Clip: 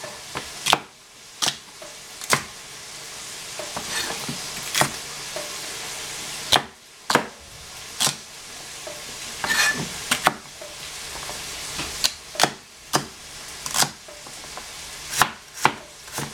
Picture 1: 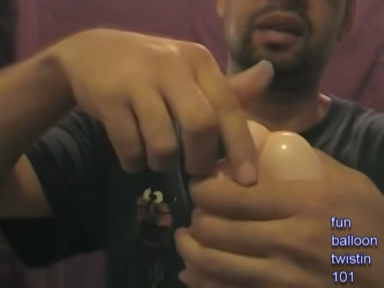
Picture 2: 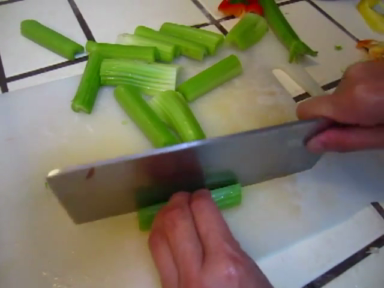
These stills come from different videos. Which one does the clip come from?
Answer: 2